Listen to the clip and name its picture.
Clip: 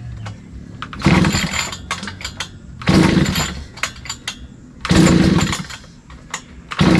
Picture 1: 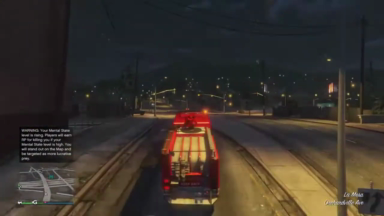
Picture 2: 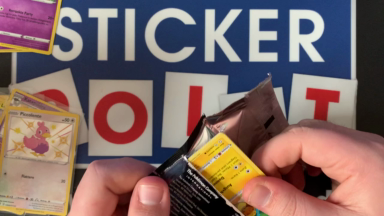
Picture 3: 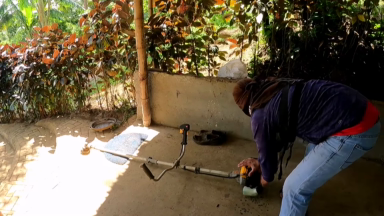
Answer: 3